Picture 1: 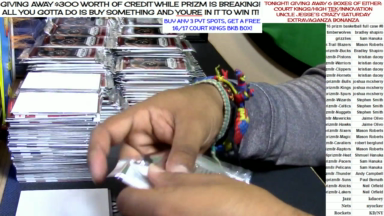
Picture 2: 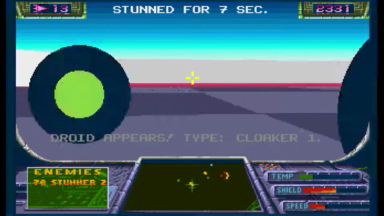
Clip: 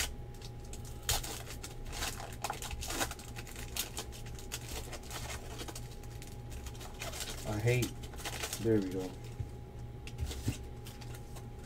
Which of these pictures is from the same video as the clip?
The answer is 1